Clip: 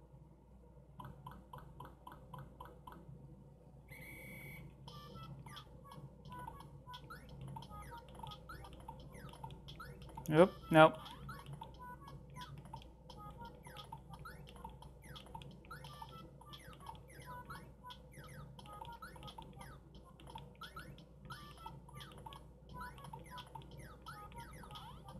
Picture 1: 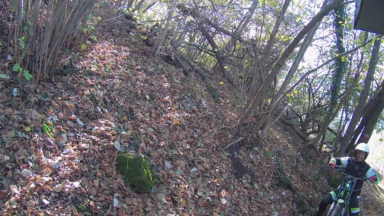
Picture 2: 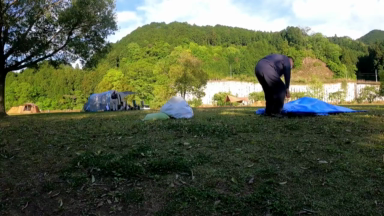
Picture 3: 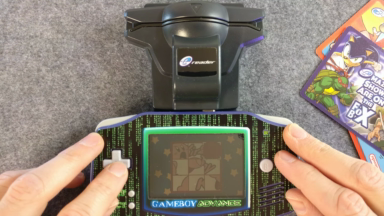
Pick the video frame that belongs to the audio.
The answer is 3